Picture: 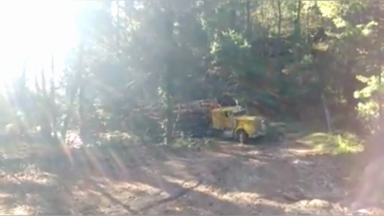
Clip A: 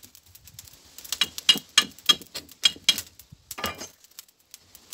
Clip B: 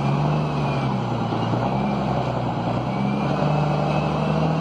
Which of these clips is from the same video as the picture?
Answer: B